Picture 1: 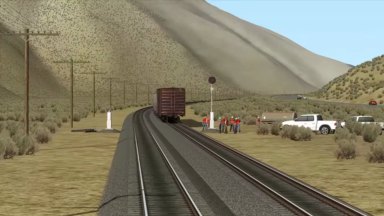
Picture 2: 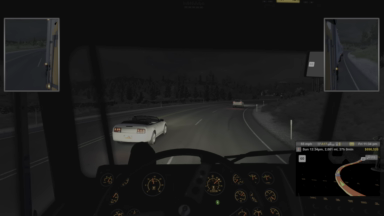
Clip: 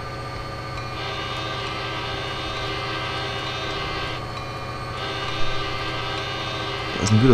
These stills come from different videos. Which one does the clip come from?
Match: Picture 1